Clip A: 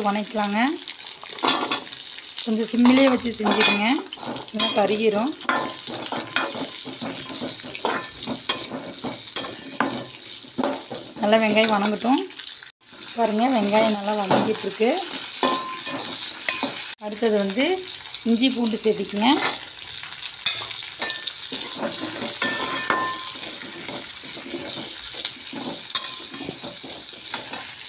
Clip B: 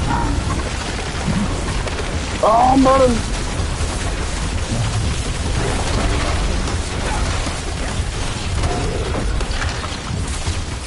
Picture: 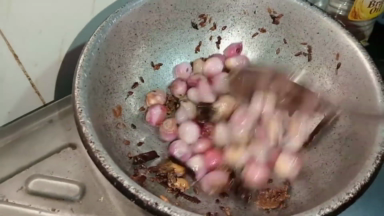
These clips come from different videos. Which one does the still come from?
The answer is A